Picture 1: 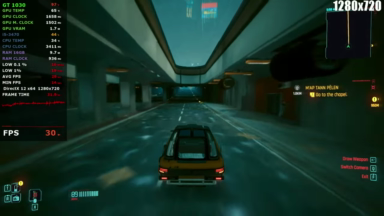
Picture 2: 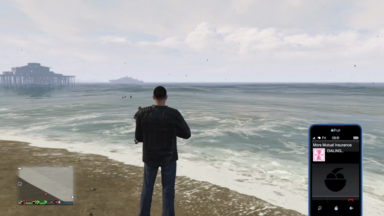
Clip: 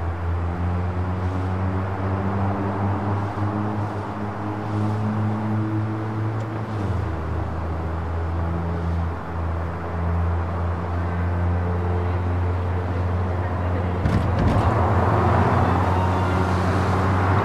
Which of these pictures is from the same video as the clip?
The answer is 1